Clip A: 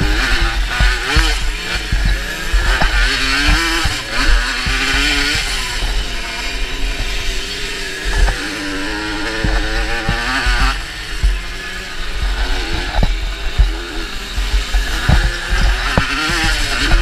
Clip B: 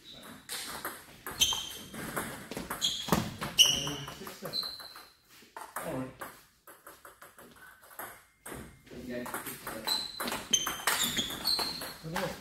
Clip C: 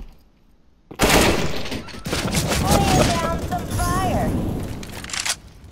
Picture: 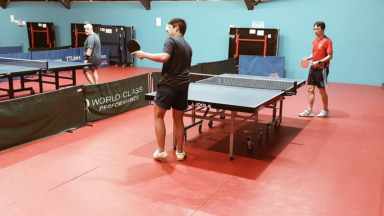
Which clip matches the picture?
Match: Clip B